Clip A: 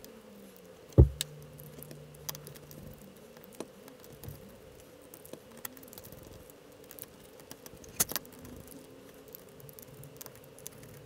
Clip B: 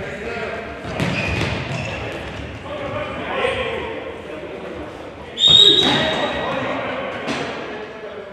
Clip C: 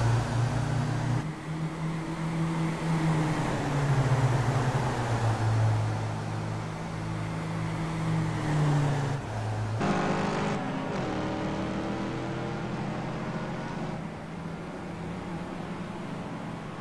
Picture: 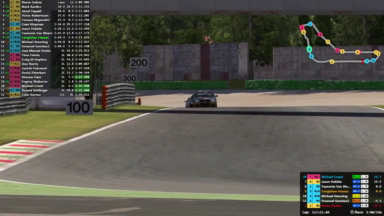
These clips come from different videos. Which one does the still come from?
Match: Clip C